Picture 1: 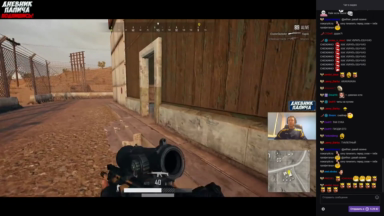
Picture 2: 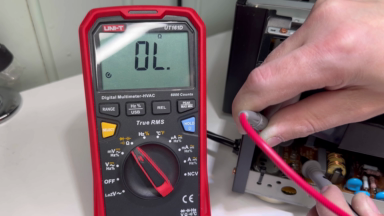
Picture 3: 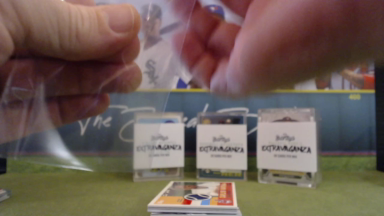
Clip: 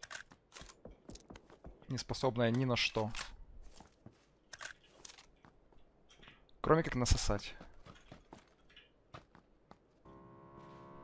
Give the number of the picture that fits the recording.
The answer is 1